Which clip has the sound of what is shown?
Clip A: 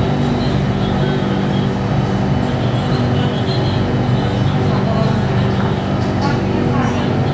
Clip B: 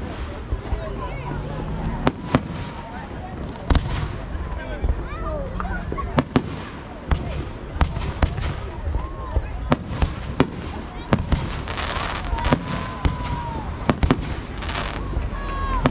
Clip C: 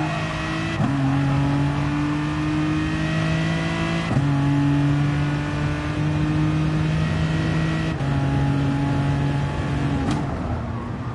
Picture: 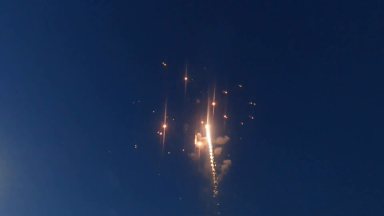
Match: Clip B